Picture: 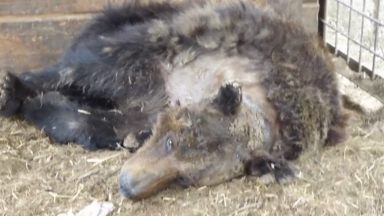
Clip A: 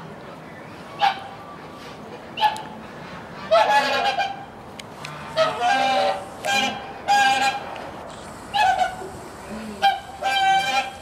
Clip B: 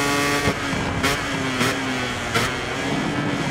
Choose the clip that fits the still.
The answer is A